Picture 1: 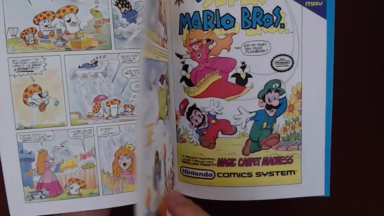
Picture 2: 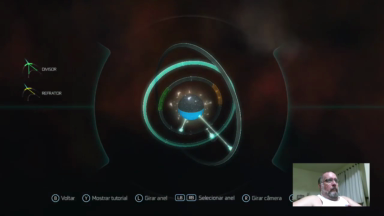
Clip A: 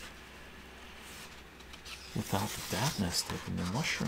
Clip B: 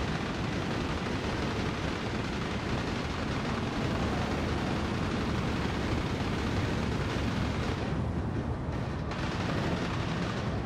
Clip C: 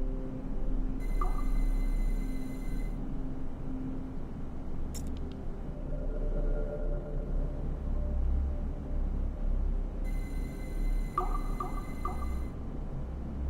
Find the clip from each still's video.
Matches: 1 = A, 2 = C